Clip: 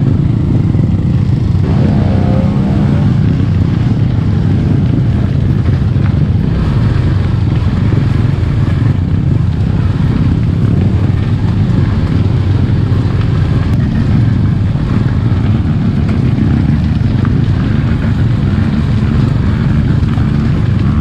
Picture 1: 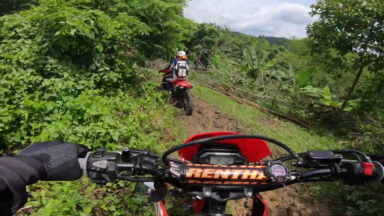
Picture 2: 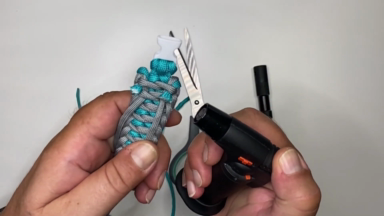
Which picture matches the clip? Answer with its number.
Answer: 1